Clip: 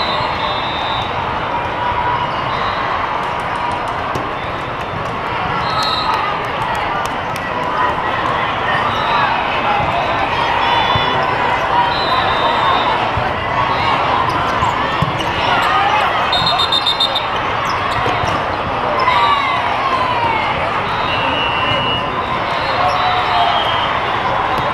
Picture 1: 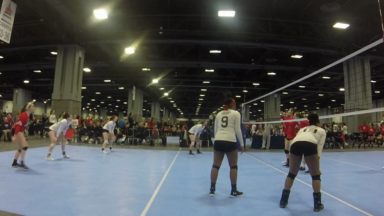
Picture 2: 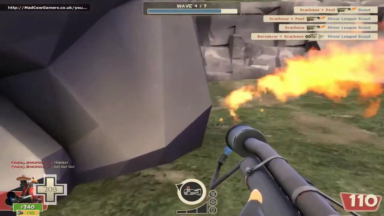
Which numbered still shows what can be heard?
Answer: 1